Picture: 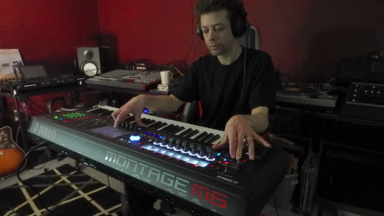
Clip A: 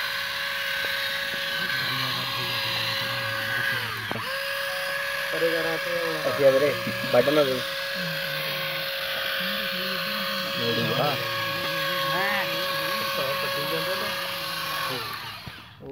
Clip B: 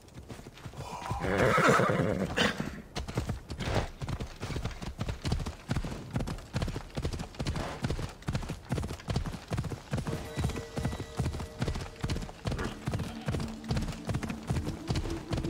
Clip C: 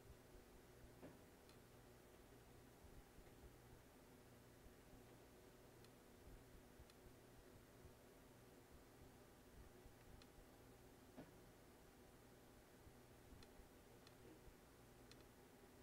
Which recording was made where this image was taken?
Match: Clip C